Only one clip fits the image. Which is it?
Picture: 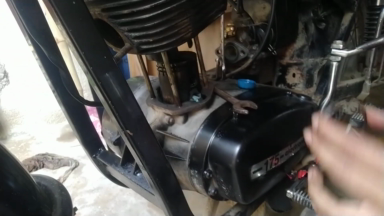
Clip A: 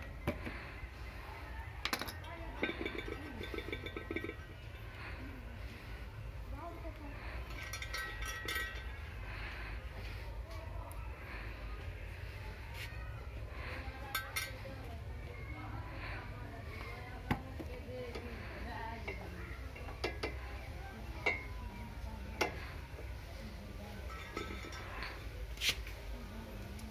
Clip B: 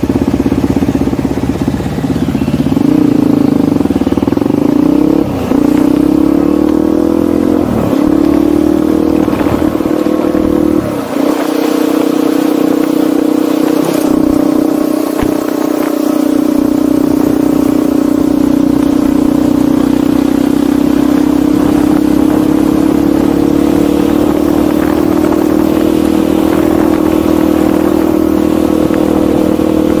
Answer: A